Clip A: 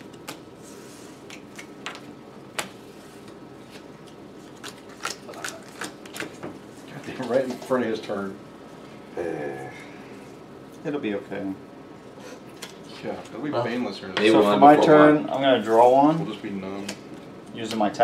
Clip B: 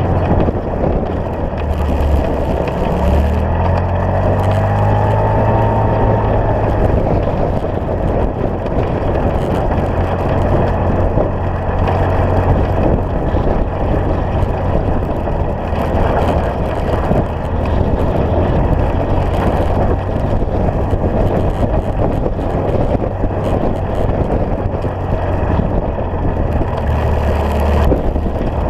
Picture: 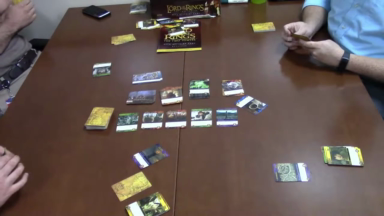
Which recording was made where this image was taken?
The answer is A